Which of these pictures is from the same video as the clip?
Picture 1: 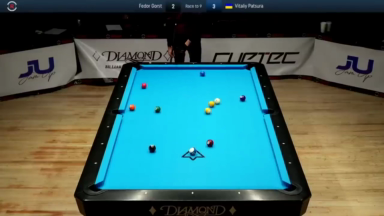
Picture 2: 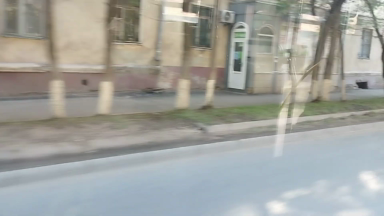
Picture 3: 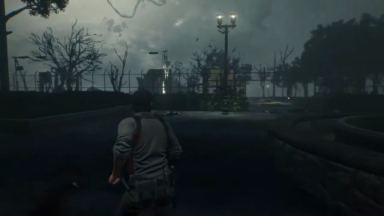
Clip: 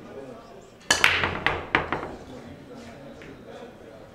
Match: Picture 1